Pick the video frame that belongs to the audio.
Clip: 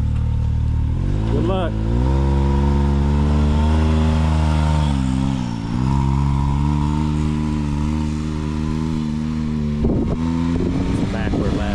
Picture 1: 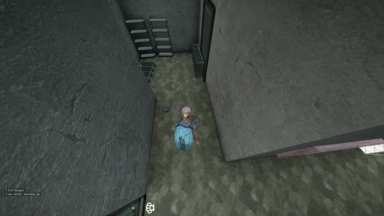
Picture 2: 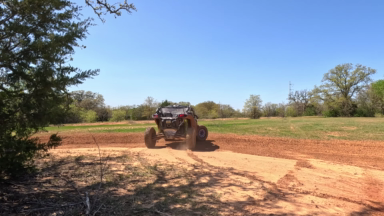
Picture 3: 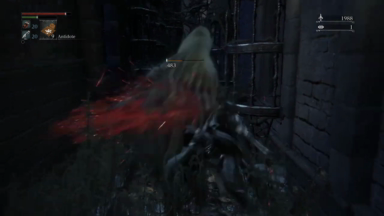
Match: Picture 2